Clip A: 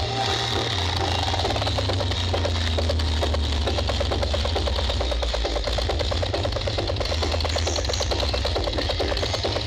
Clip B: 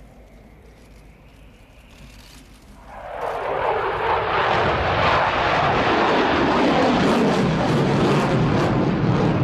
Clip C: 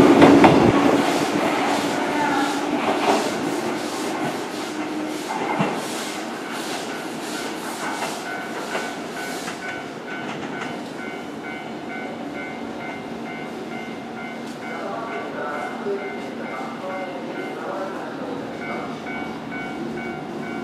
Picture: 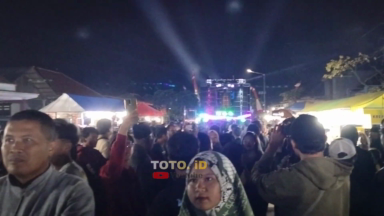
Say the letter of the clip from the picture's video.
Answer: A